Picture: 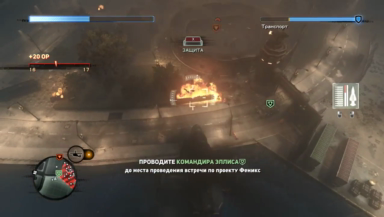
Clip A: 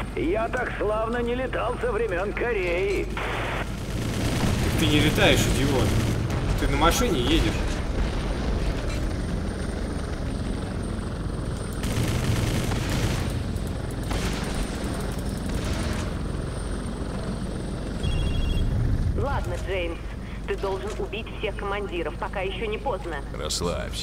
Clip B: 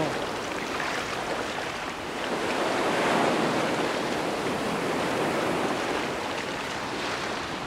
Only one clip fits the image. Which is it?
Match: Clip A